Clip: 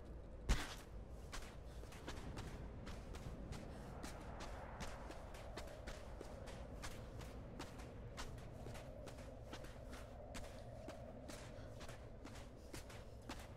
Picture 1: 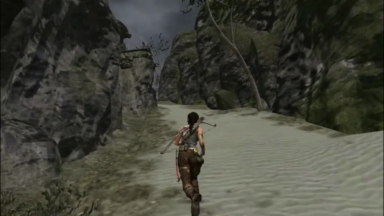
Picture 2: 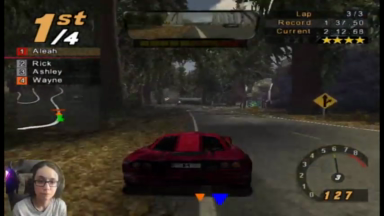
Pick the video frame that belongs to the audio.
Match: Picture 1